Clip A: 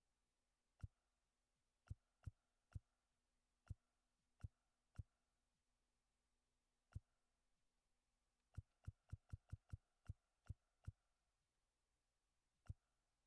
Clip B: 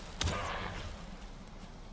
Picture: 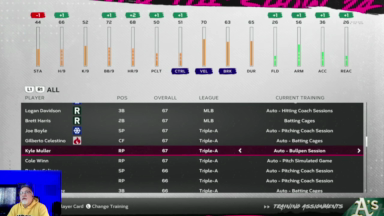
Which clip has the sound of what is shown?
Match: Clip A